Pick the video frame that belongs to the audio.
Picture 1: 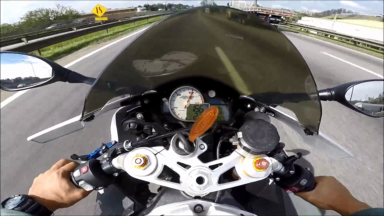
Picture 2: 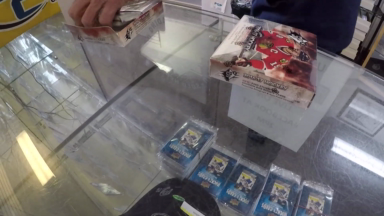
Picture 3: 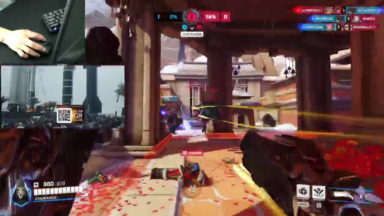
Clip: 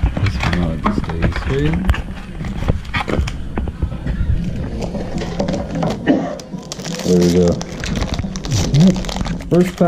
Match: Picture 2